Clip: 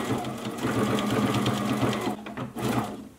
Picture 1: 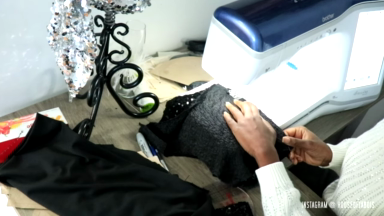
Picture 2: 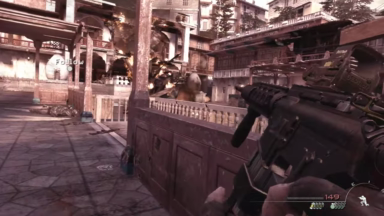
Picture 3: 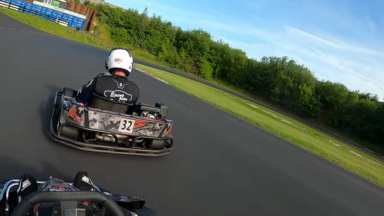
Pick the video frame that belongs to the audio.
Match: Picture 1